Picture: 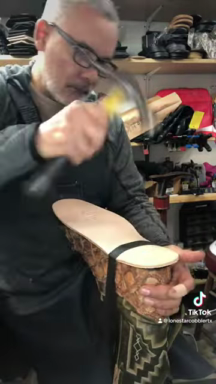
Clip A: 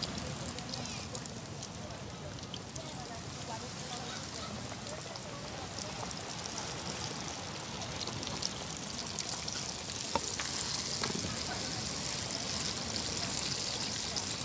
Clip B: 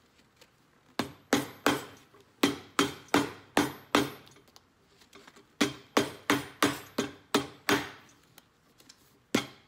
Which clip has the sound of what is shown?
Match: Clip B